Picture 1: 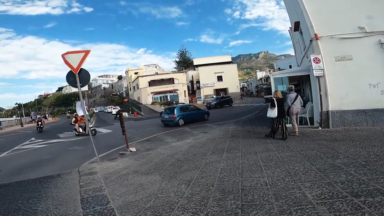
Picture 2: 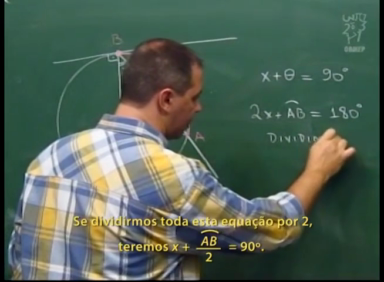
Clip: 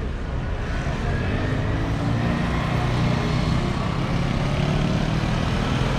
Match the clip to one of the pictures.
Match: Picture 1